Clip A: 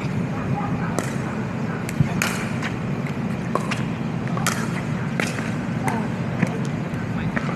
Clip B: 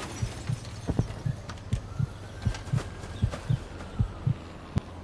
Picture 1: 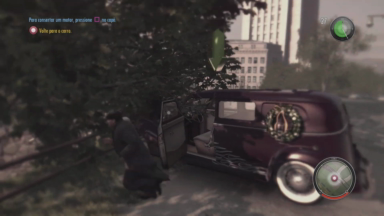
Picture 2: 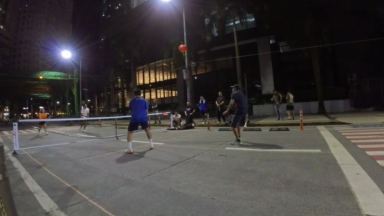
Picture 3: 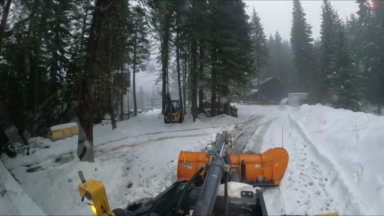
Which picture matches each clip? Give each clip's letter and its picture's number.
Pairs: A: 2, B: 1